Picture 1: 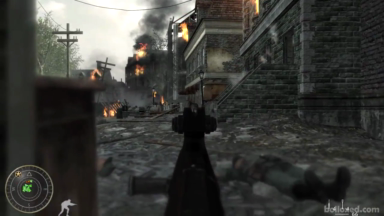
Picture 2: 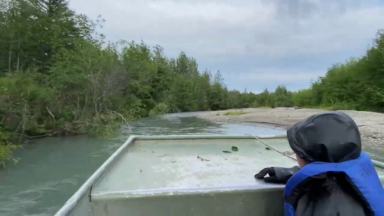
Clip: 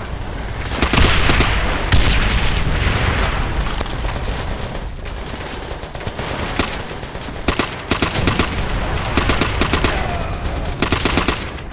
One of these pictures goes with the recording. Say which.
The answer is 1